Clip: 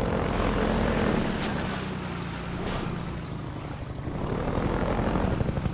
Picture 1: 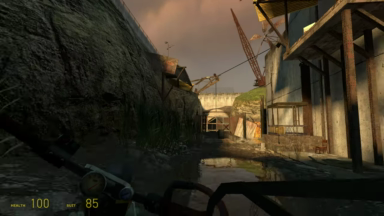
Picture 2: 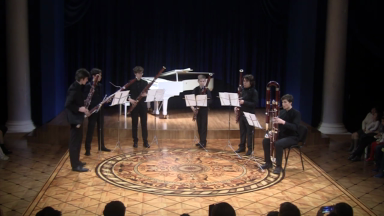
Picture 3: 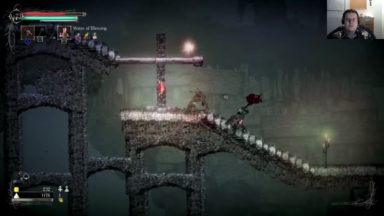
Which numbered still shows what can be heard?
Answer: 1